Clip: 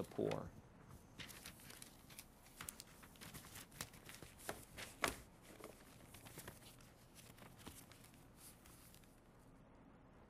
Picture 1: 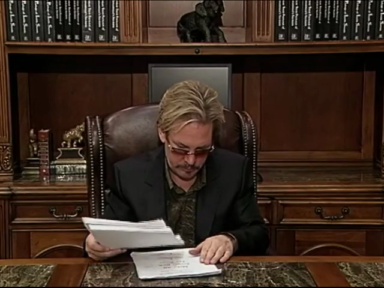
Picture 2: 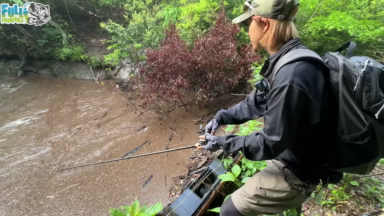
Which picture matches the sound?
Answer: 1